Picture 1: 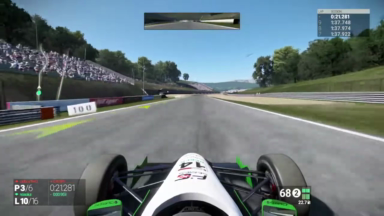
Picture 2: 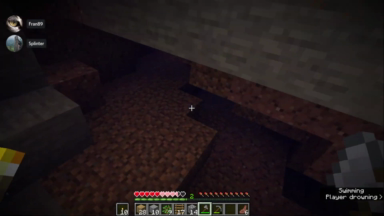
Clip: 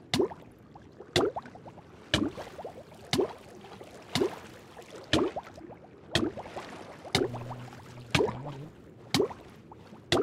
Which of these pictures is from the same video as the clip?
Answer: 2